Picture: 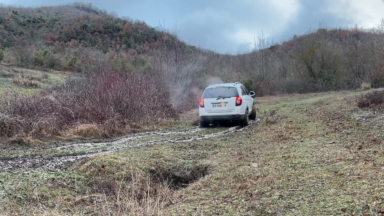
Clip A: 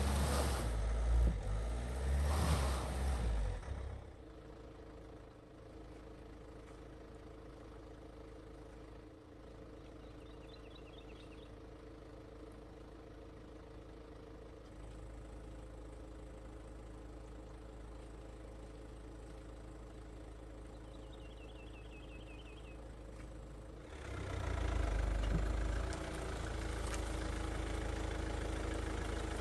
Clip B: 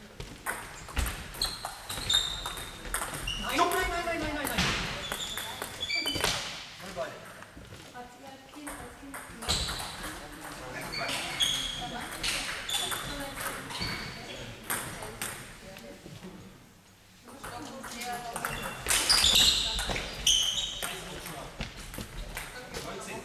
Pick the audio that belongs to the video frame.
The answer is A